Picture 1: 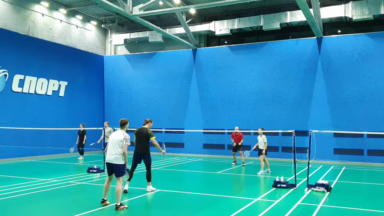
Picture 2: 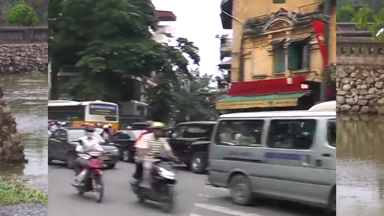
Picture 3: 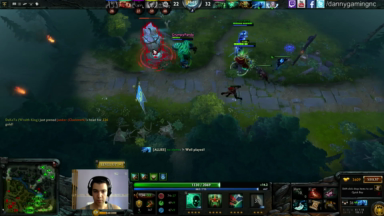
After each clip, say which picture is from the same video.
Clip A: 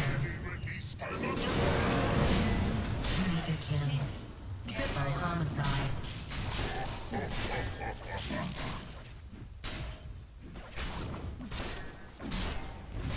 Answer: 3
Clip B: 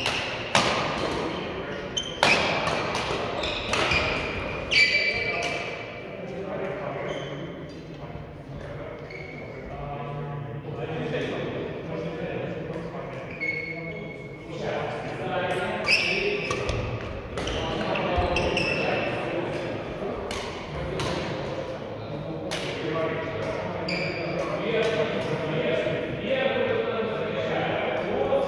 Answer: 1